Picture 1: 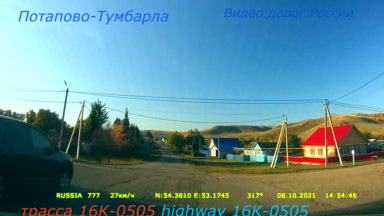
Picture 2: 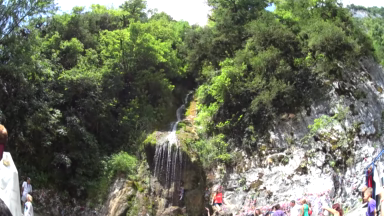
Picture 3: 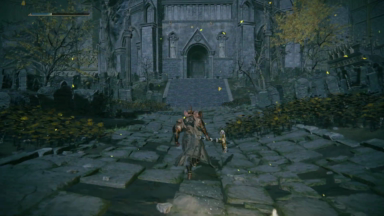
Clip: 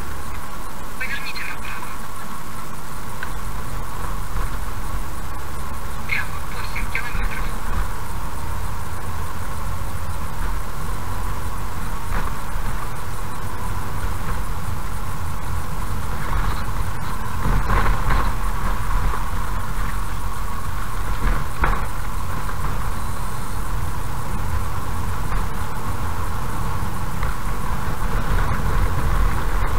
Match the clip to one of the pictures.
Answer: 1